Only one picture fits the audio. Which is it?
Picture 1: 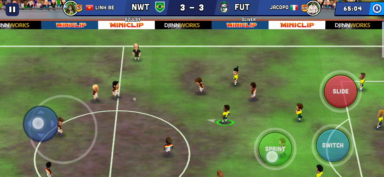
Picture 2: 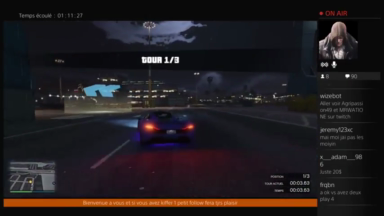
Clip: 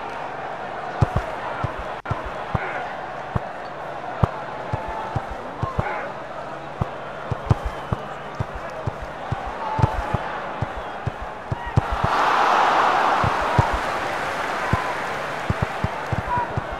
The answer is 1